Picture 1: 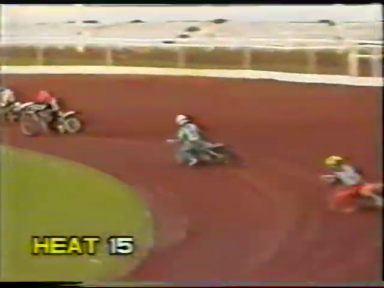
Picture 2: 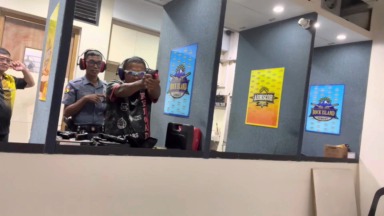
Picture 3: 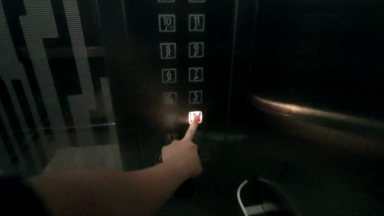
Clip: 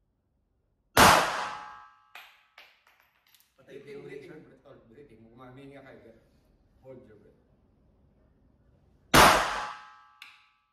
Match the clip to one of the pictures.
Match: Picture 2